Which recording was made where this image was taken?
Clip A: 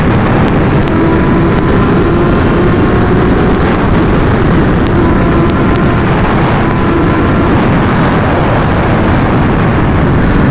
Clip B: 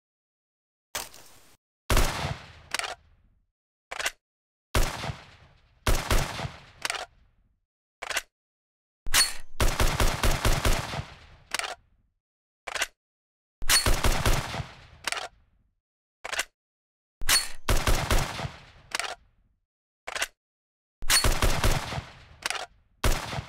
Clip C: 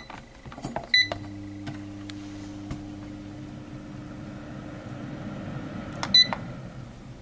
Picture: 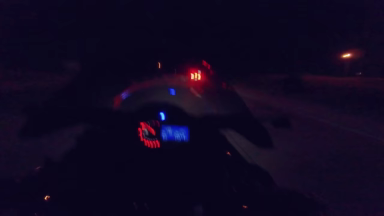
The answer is A